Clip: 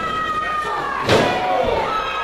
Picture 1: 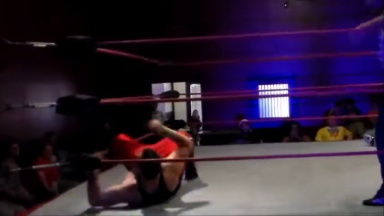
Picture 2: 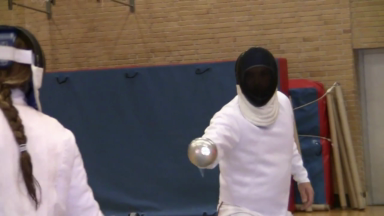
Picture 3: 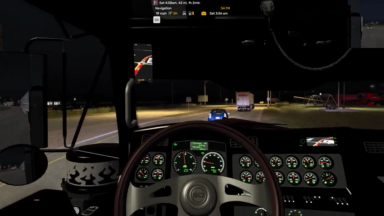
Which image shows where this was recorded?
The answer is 1